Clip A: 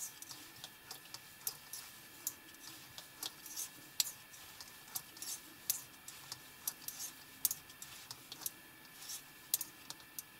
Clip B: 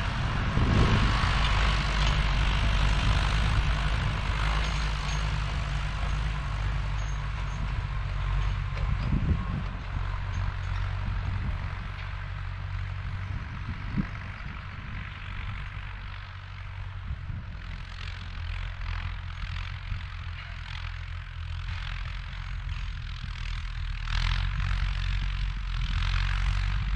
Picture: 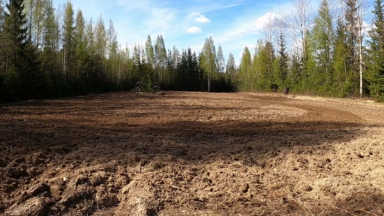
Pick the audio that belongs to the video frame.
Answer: B